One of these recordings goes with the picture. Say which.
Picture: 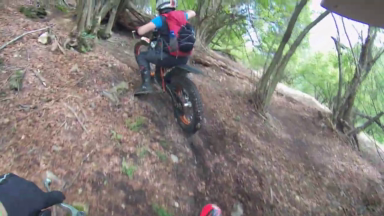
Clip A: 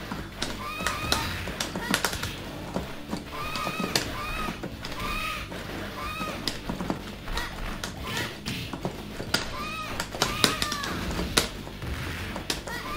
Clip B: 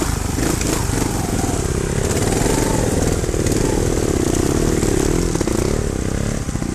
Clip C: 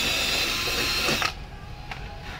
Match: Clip B